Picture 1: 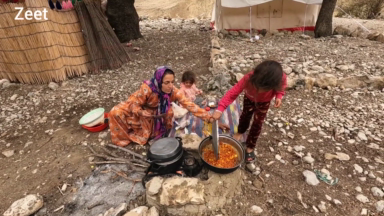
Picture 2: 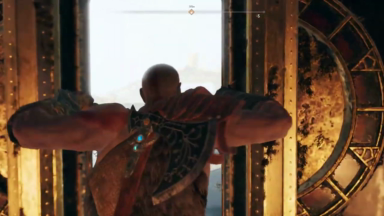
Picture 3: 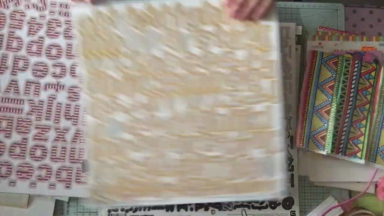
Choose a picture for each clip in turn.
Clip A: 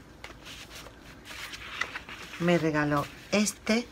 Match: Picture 3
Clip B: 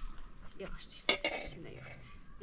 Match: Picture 1